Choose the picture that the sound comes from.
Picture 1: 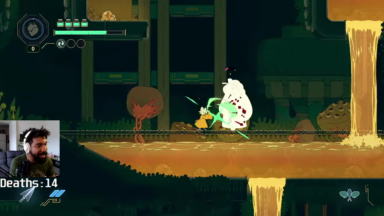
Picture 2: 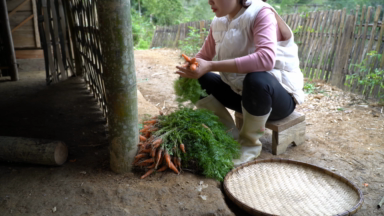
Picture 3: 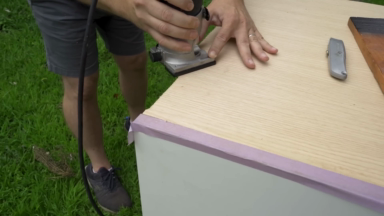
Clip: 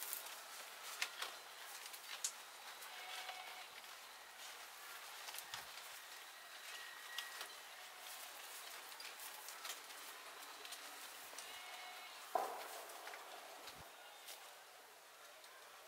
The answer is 2